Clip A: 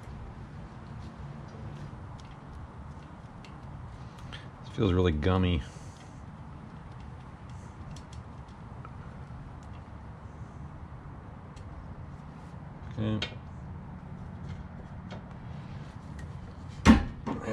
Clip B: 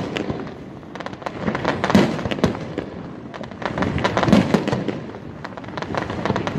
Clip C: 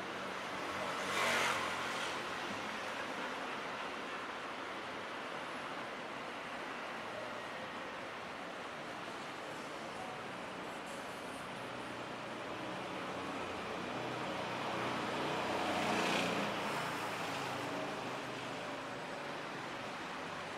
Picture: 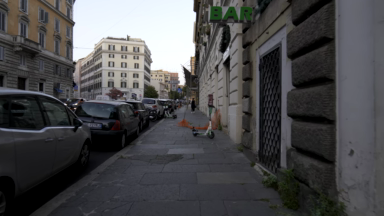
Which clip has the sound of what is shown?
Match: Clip C